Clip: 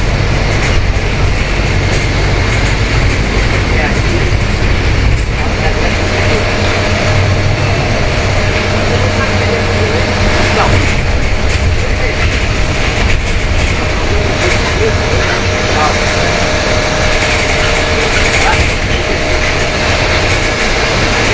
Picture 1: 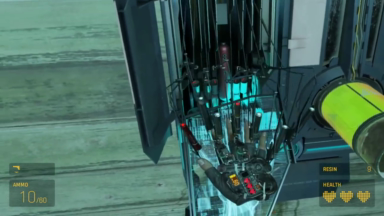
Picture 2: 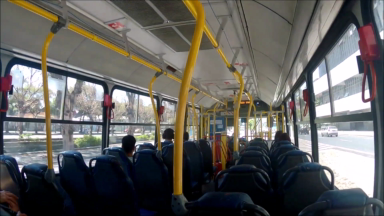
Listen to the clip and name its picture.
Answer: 2